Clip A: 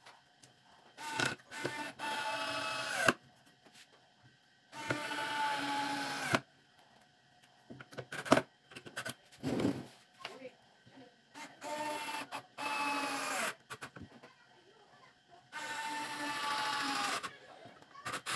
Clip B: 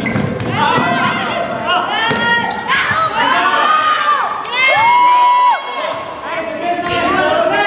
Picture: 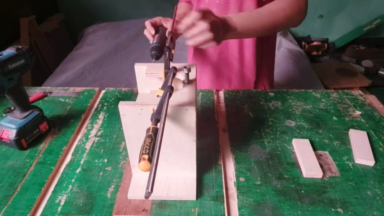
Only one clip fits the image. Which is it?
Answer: A